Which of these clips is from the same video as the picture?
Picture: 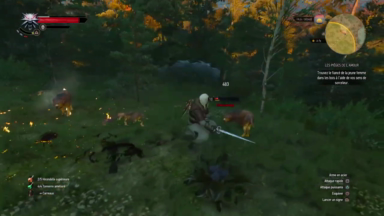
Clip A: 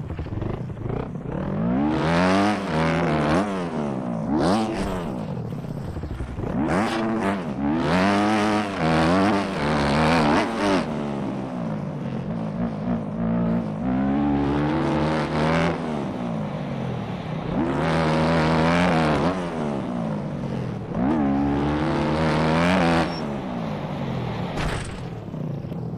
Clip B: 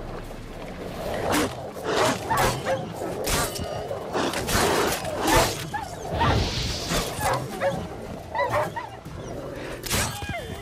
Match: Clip B